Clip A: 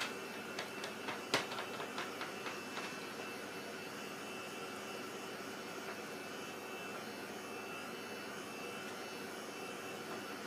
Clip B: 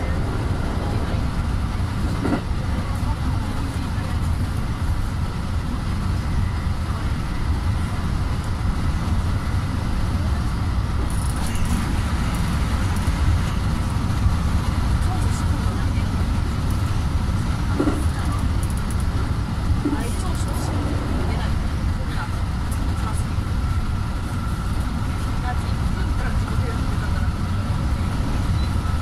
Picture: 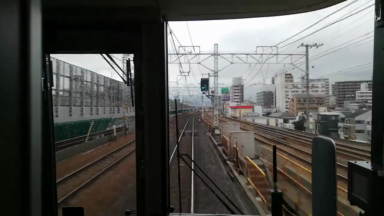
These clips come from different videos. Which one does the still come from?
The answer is B